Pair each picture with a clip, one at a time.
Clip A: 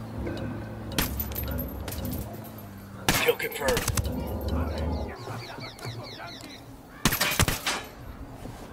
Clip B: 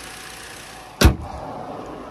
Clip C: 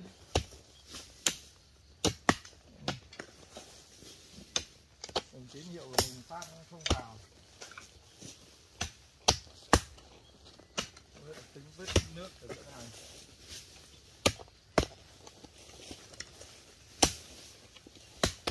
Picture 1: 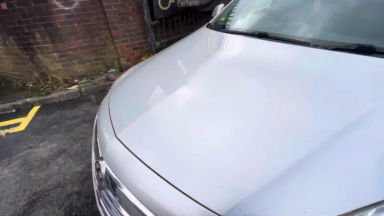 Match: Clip B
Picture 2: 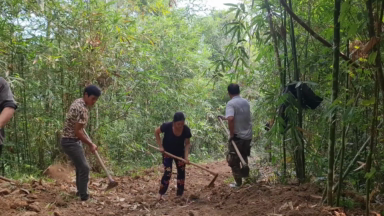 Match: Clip C